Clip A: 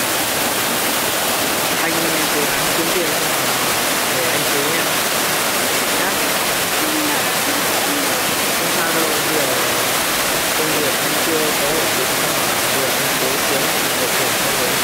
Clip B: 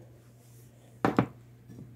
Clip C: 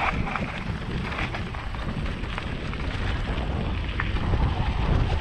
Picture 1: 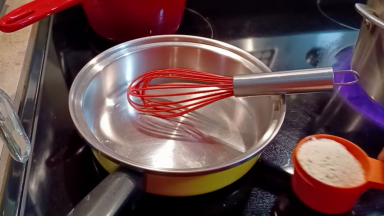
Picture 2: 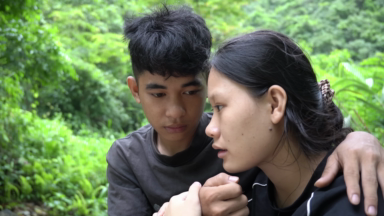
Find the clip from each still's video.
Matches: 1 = B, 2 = A